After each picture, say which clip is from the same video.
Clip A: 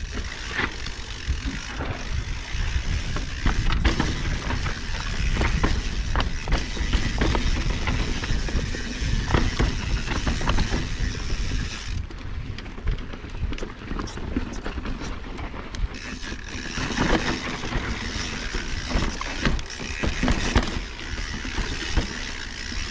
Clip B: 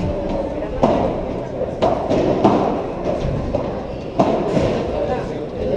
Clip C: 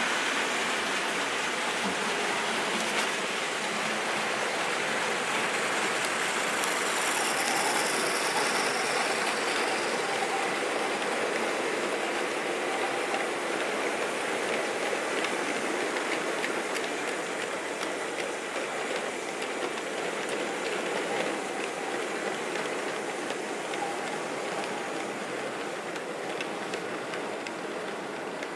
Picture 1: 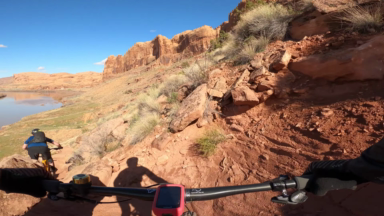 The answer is A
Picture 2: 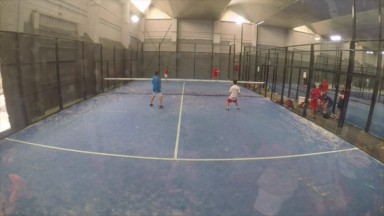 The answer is B